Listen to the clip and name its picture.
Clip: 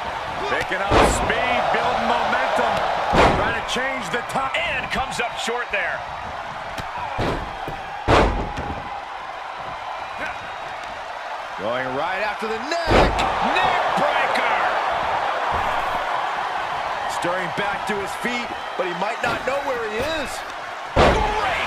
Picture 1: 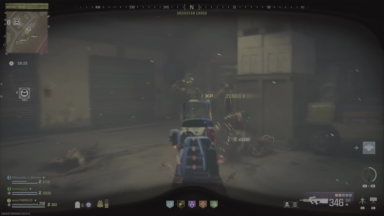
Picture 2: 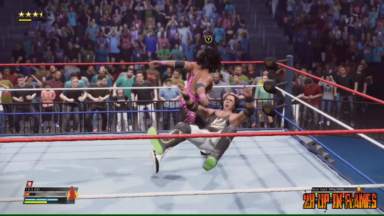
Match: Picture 2